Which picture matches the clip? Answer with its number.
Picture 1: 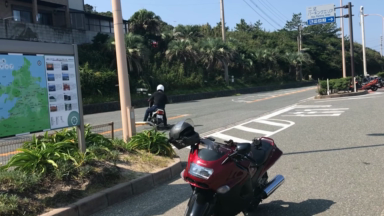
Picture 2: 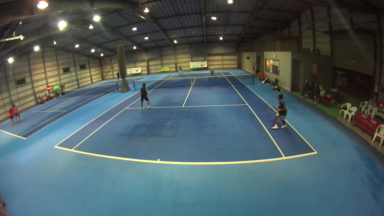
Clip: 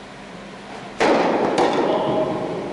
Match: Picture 2